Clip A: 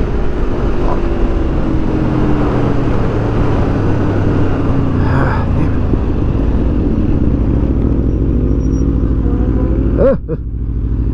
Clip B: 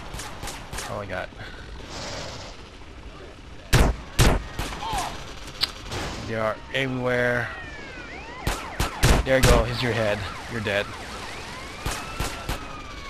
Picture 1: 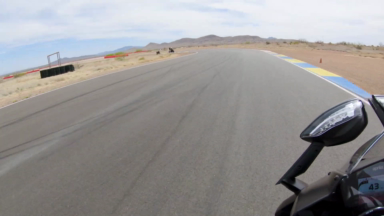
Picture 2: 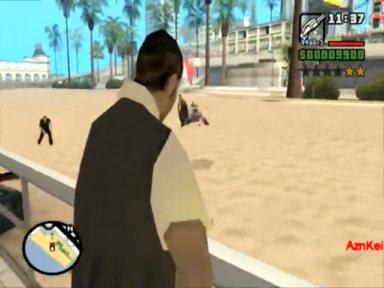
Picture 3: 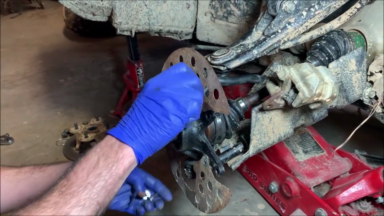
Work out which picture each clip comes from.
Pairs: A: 1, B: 2